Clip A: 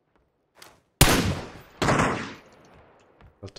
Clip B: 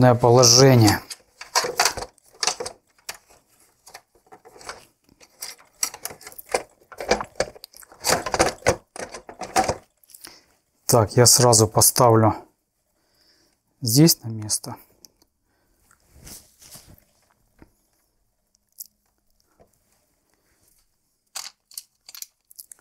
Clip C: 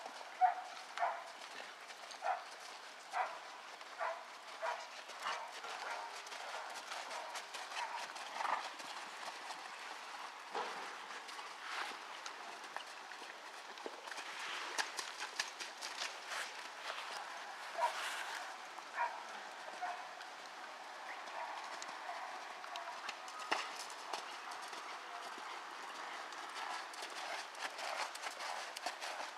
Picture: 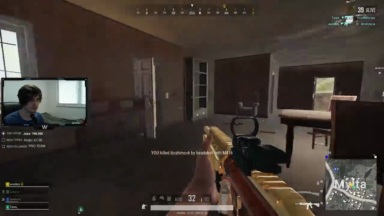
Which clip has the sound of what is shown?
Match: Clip A